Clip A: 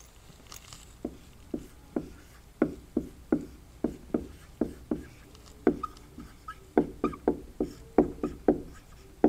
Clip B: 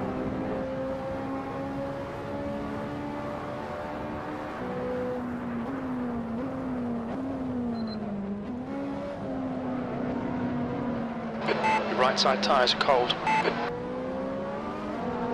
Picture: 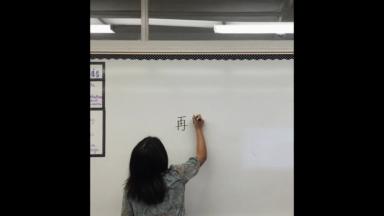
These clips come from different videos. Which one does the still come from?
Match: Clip A